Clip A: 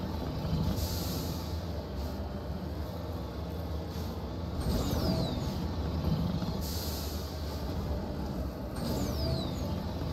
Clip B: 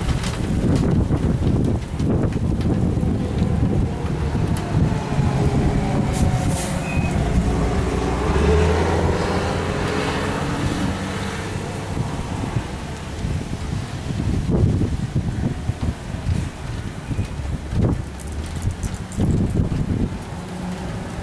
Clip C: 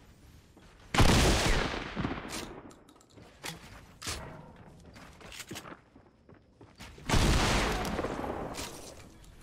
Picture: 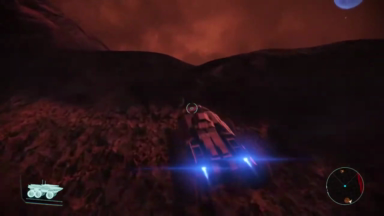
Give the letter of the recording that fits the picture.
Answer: A